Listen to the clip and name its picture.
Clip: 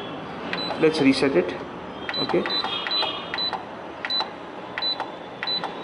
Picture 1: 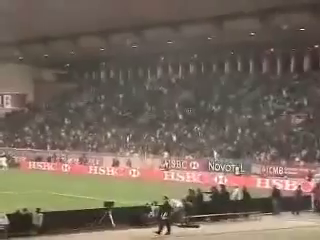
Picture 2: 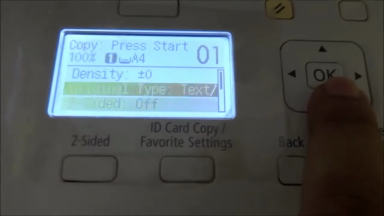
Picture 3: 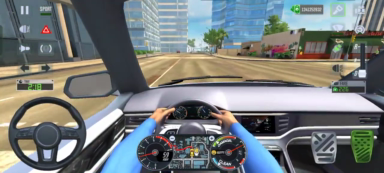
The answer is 2